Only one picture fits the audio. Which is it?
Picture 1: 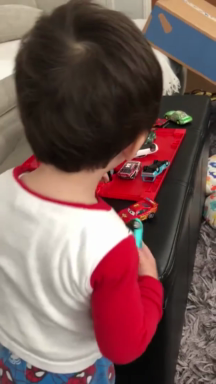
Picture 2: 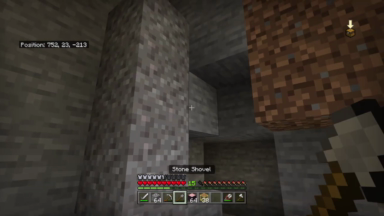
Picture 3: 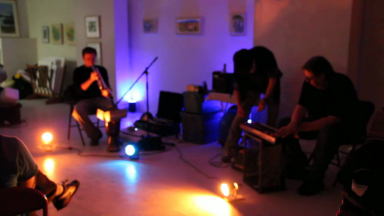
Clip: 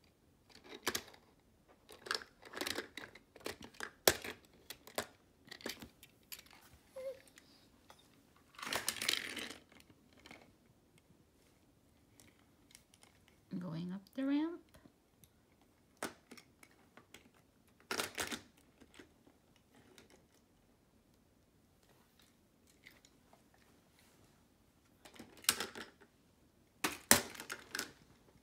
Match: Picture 1